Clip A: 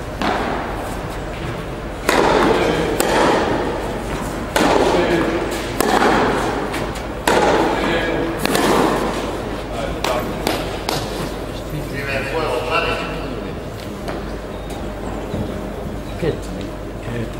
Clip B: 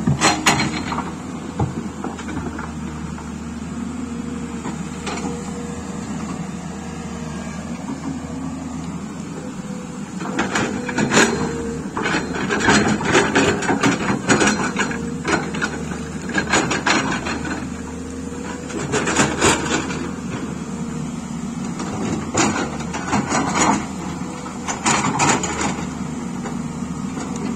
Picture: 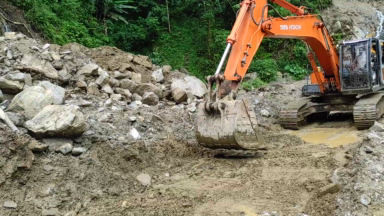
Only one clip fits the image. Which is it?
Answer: B